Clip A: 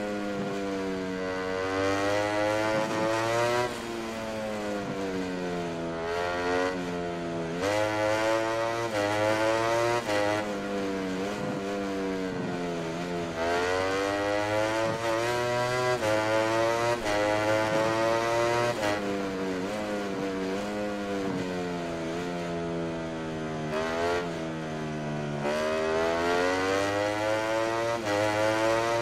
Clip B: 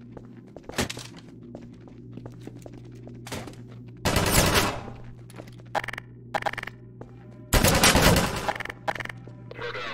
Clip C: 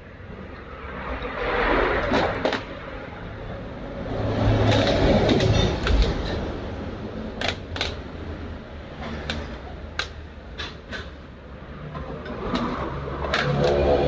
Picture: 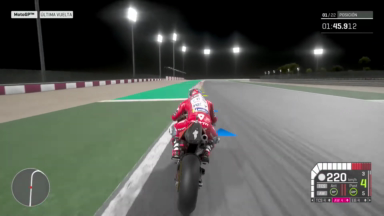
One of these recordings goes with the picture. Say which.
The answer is A